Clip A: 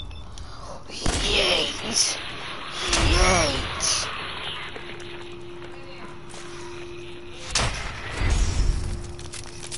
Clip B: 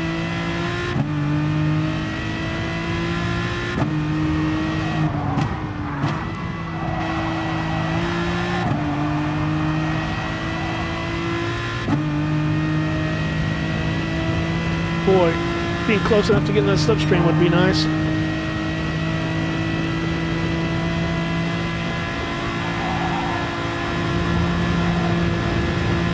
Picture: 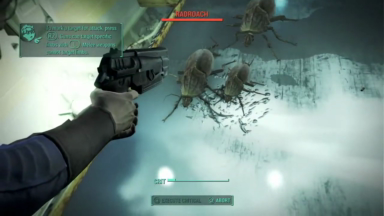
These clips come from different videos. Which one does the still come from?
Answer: A